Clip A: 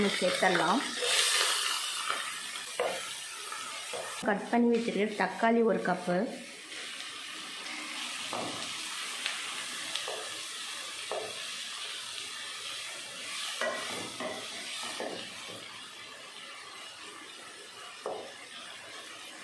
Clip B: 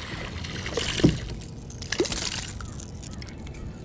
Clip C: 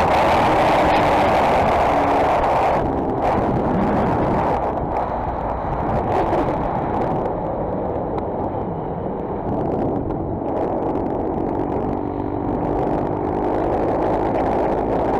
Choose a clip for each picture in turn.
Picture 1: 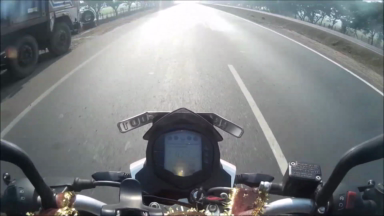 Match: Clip C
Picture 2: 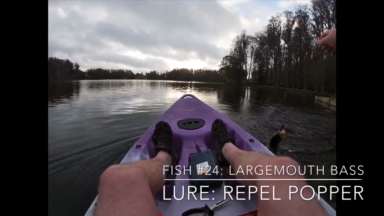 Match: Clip B